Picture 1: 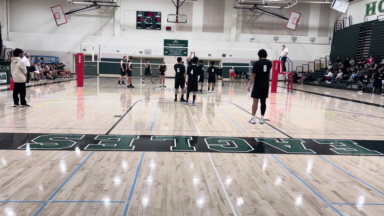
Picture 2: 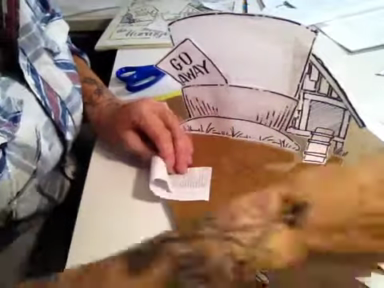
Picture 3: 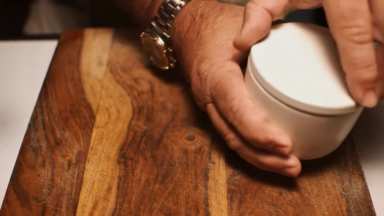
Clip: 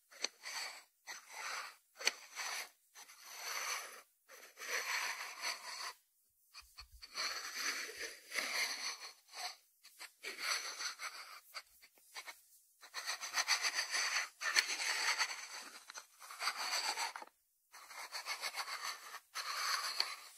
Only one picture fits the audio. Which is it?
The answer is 3